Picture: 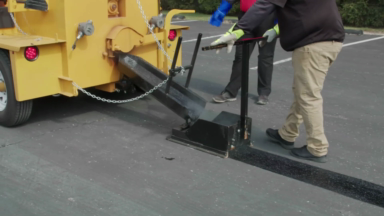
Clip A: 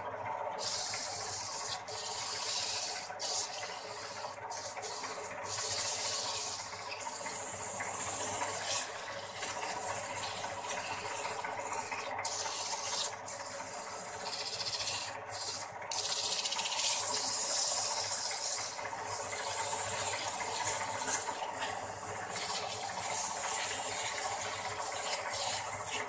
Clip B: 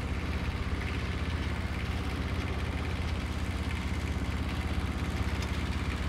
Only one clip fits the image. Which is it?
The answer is B